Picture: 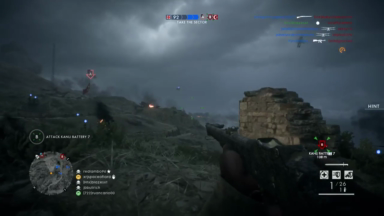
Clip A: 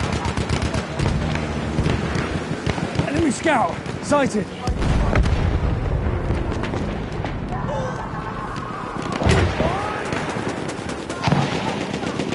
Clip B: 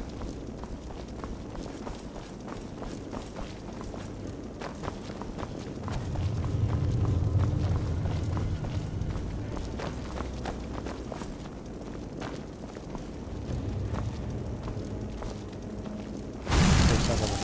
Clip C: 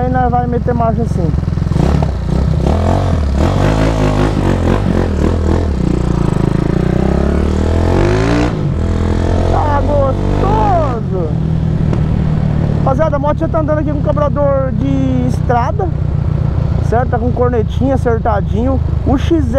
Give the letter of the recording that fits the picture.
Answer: A